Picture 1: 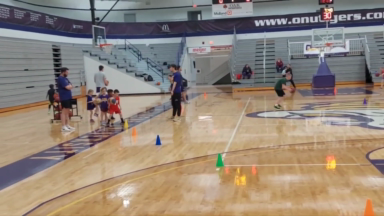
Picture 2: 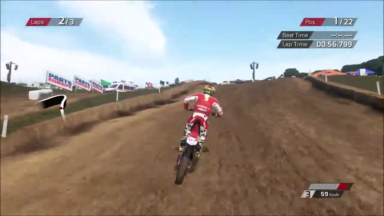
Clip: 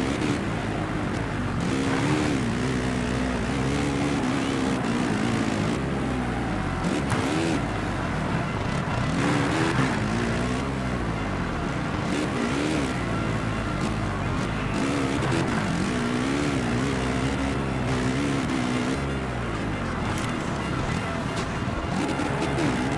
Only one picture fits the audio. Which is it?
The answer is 2